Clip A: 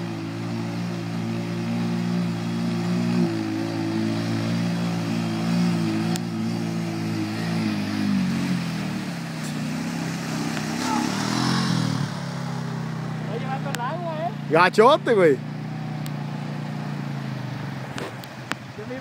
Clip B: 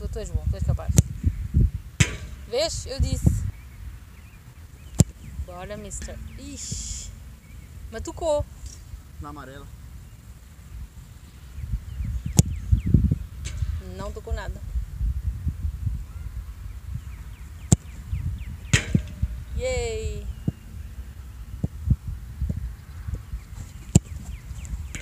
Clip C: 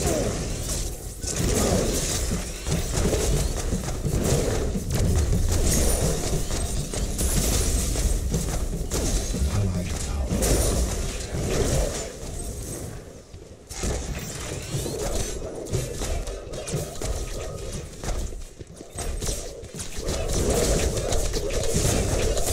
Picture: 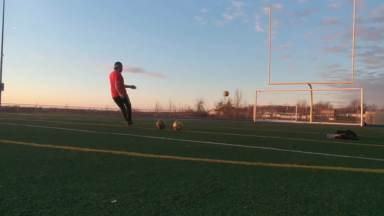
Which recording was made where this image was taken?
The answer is B